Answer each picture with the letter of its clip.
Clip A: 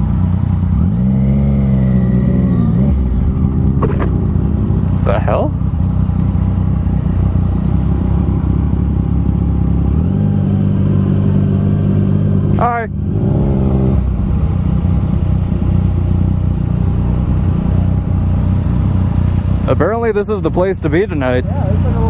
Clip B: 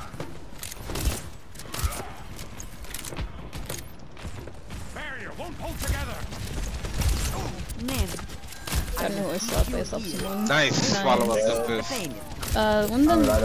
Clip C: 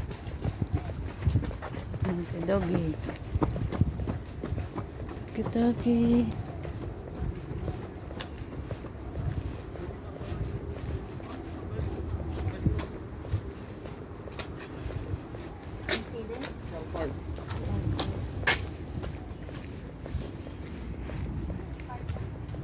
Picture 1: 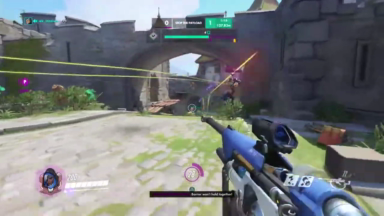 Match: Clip B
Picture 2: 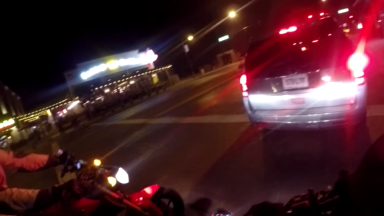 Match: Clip A